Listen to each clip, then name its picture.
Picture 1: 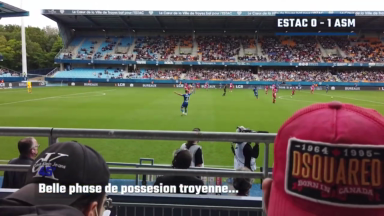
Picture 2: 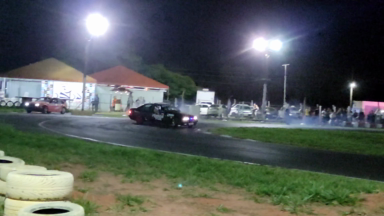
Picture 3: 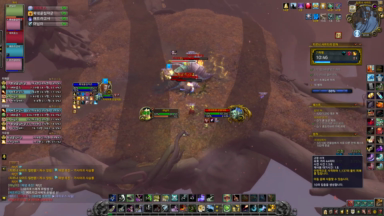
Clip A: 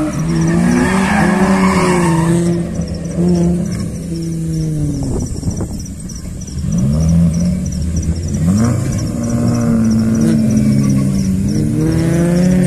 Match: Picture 2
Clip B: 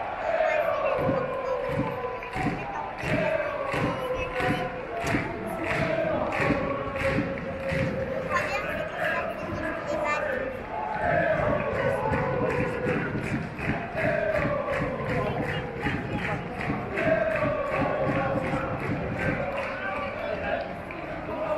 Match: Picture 1